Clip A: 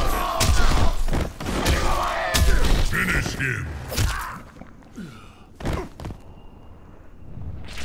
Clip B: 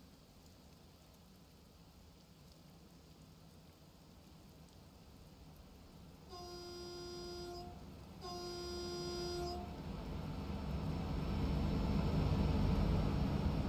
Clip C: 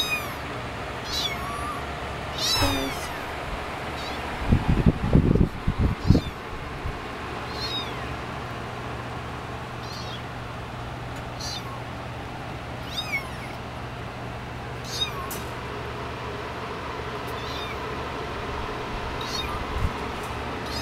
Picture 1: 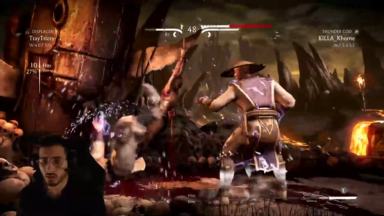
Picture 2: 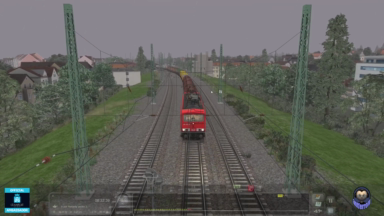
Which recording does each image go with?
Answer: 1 A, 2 B